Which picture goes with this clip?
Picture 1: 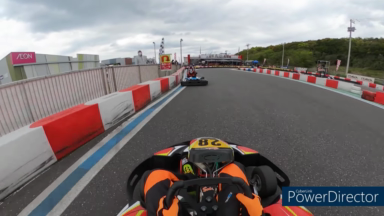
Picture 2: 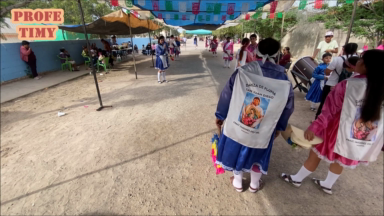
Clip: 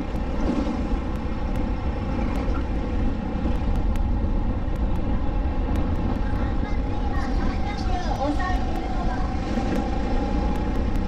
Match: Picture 1